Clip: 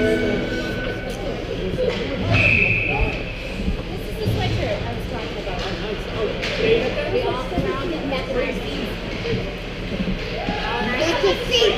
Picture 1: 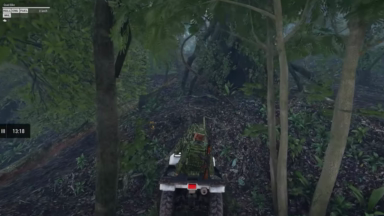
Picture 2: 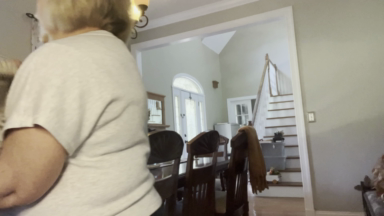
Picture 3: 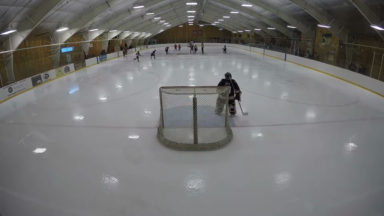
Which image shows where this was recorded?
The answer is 3